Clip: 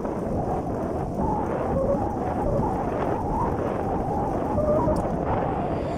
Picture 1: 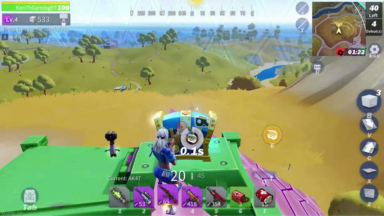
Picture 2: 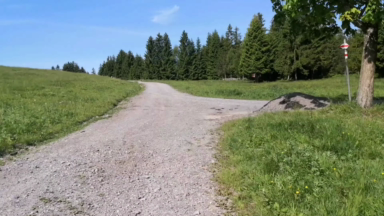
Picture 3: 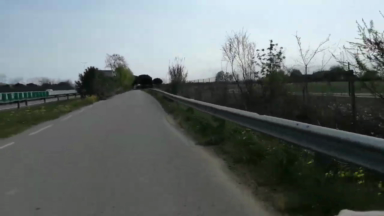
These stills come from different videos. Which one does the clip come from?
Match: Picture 3